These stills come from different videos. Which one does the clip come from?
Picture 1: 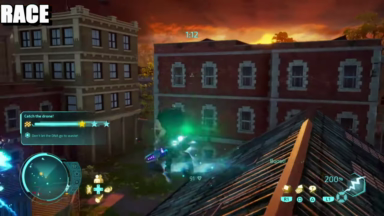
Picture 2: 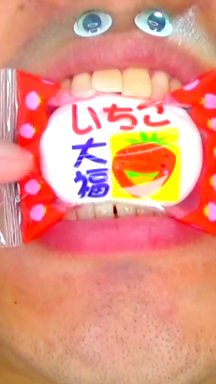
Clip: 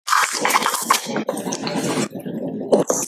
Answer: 2